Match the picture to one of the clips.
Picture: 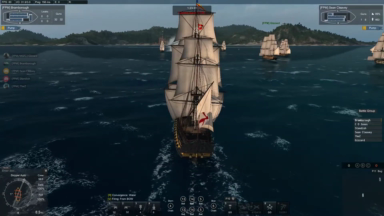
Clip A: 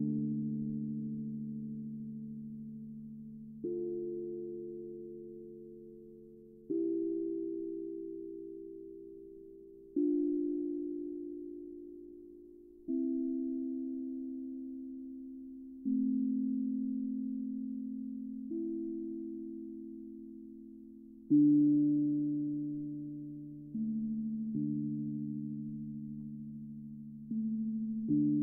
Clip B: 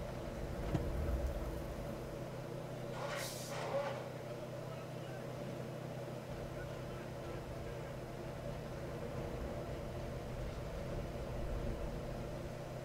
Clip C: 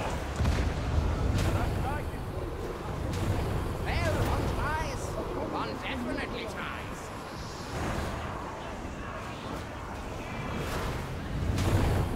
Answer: B